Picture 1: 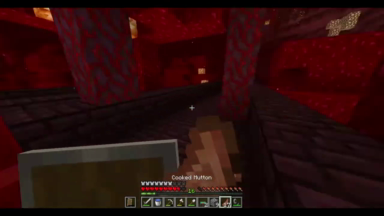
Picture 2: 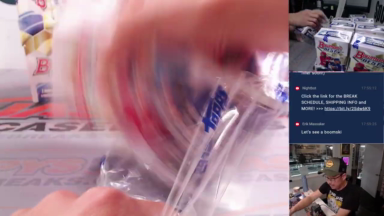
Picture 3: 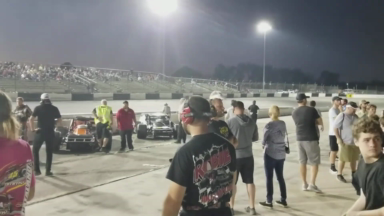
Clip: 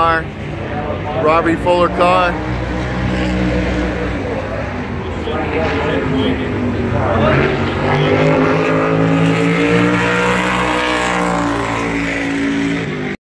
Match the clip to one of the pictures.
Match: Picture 3